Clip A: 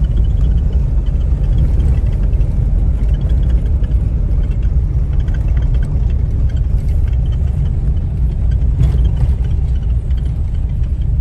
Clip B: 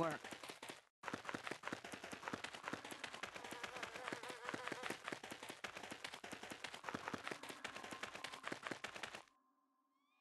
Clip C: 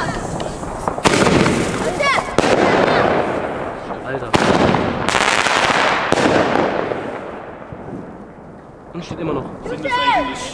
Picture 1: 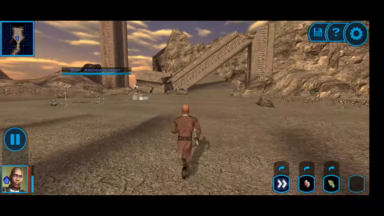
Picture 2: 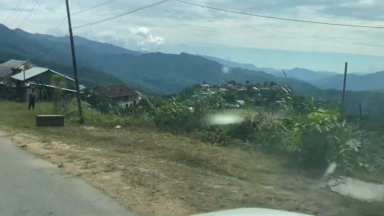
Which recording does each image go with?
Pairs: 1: B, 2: A